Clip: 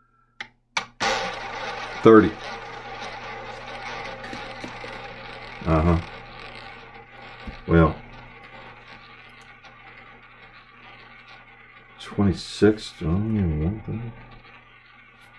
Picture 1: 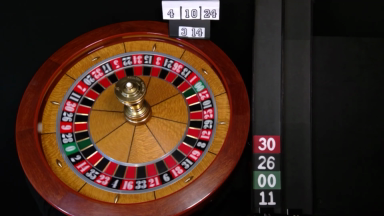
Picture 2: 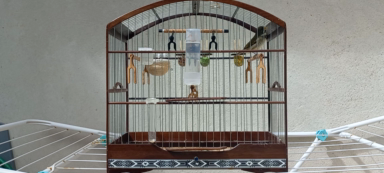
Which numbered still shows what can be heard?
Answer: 1